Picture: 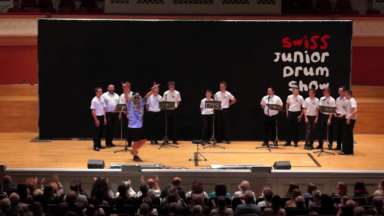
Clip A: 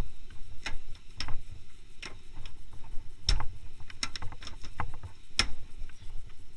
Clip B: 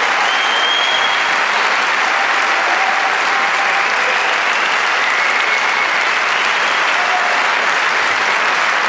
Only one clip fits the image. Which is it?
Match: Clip B